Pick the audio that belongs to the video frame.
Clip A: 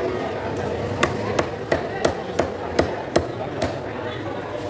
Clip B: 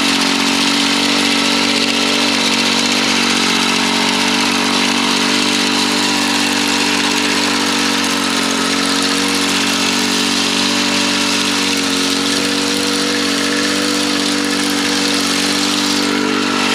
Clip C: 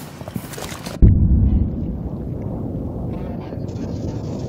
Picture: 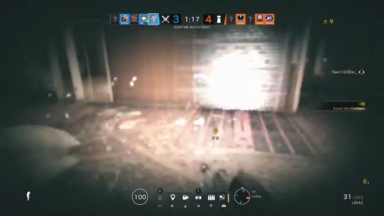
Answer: C